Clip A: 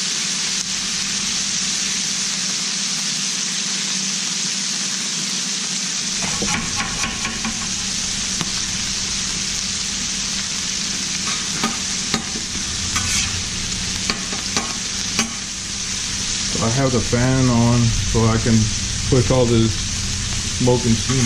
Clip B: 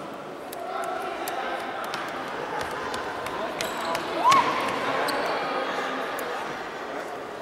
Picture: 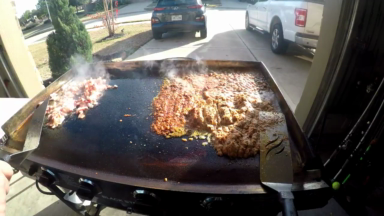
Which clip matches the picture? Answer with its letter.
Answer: A